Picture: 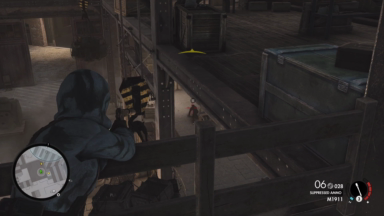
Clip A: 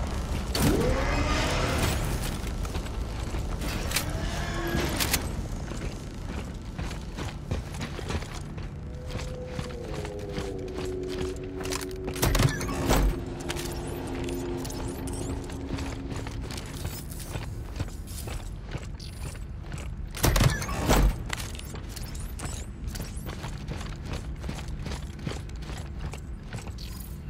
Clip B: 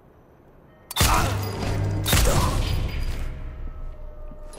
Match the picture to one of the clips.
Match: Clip B